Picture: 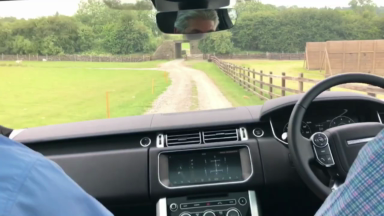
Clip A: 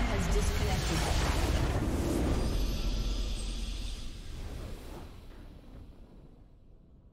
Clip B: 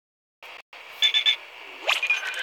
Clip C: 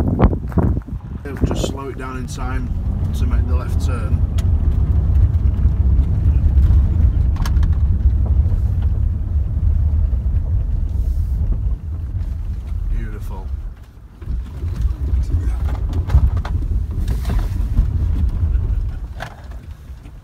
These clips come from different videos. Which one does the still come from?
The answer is C